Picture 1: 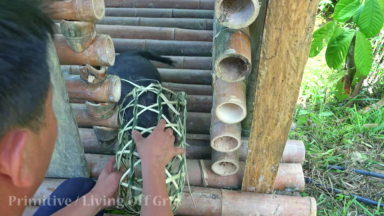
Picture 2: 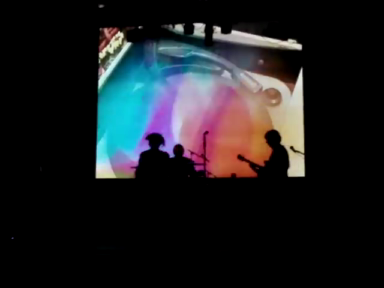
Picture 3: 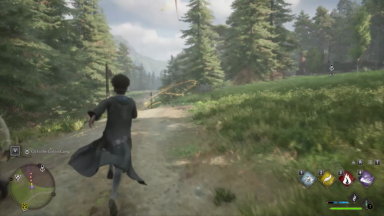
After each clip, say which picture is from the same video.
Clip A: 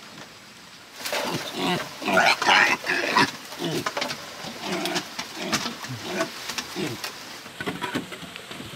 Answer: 1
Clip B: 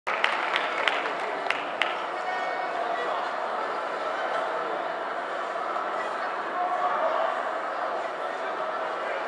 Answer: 2